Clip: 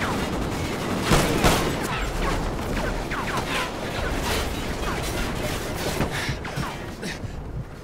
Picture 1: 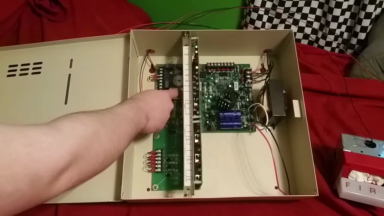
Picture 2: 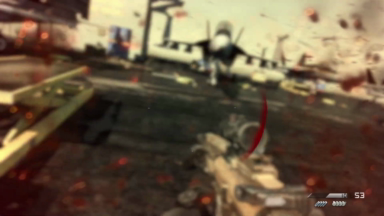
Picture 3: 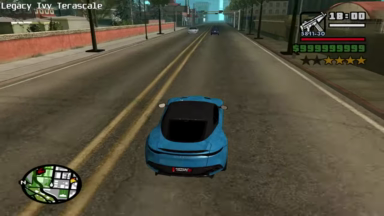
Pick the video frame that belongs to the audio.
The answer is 2